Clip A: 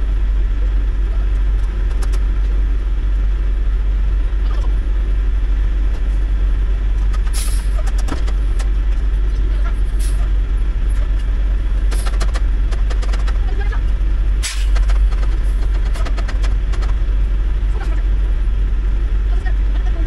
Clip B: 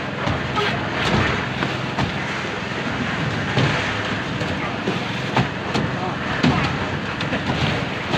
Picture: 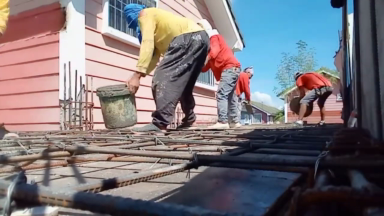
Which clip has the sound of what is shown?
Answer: B